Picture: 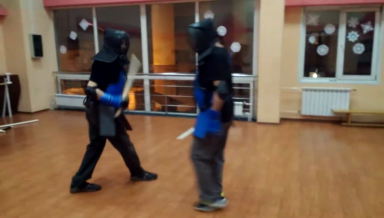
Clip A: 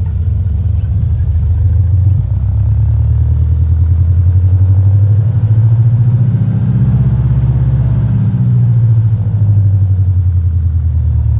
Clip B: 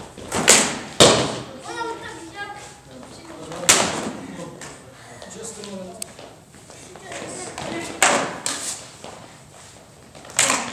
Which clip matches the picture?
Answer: B